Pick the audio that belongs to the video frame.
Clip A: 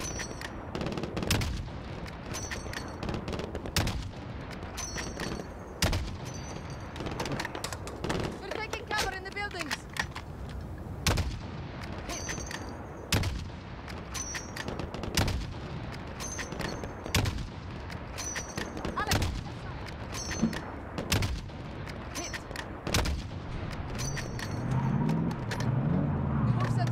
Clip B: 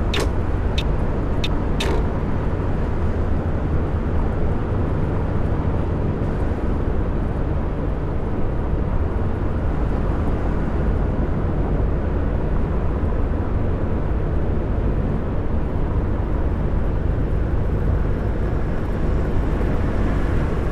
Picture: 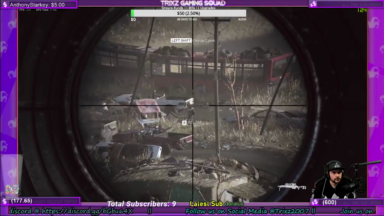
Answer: A